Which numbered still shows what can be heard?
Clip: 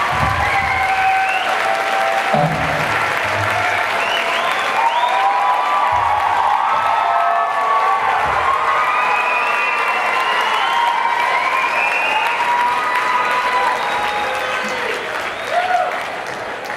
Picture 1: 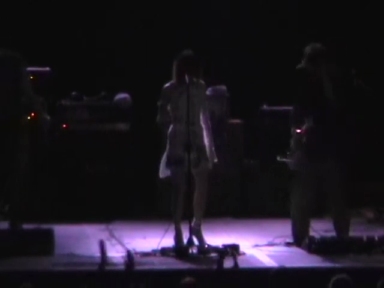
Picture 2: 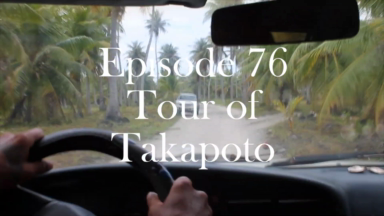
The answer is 1